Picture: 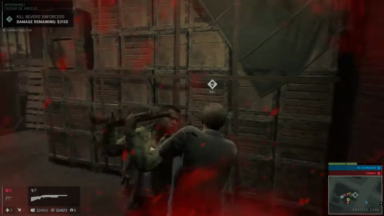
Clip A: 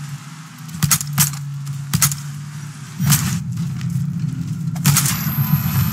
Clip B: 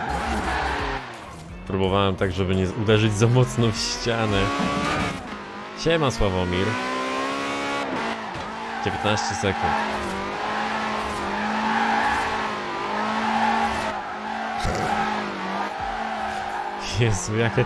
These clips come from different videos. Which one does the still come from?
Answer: A